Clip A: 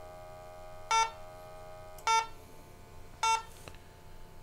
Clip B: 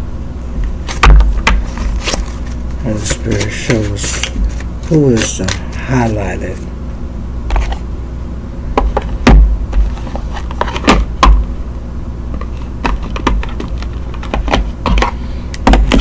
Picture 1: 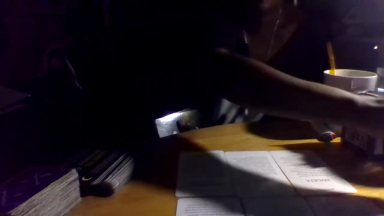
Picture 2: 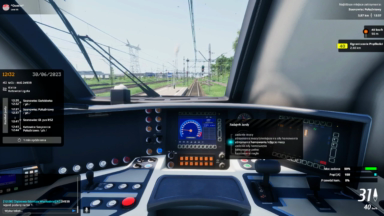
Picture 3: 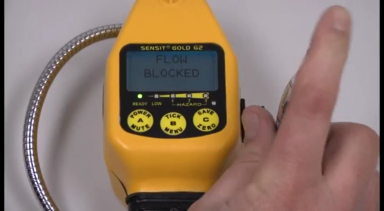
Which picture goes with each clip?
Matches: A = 3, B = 1